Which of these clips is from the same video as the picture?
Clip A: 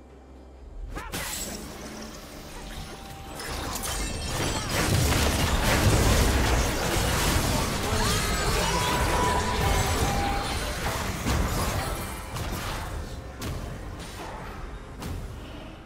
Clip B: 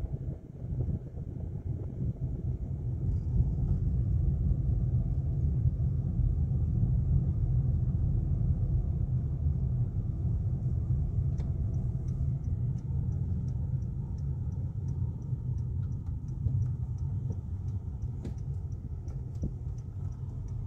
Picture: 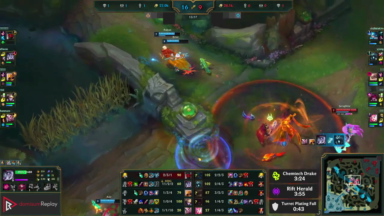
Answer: A